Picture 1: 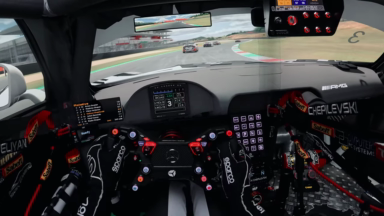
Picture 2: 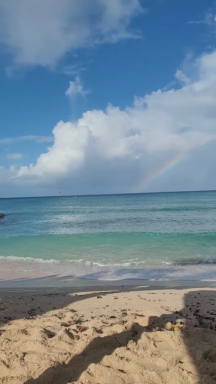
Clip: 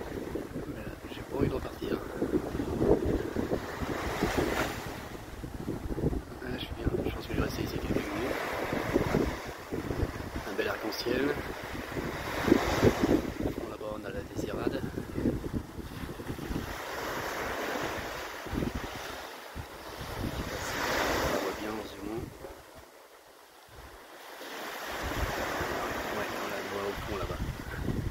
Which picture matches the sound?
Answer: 2